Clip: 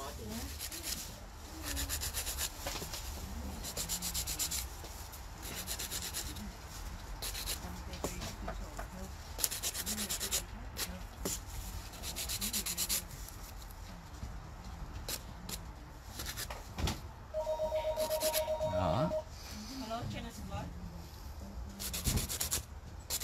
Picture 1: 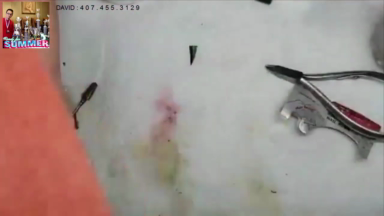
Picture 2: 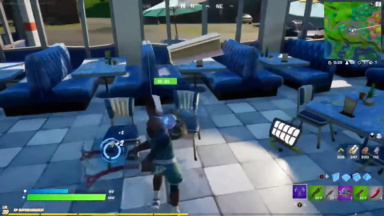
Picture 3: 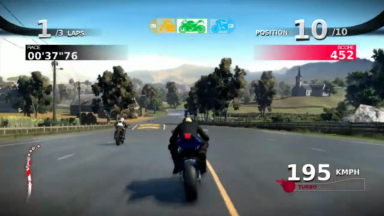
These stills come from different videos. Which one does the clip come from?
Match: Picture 1